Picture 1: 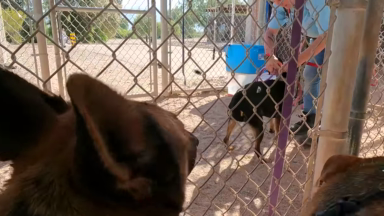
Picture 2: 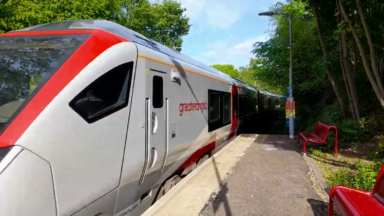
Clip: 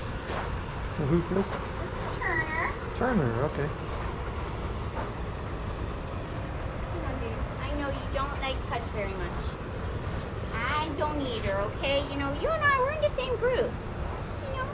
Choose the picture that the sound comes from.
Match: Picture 1